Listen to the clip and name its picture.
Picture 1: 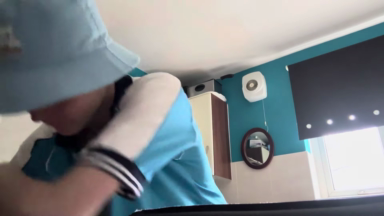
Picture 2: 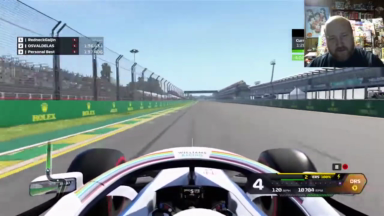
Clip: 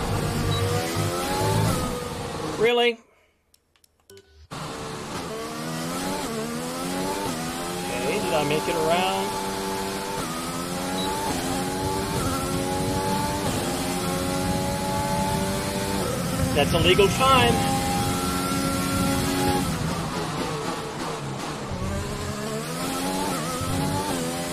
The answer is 2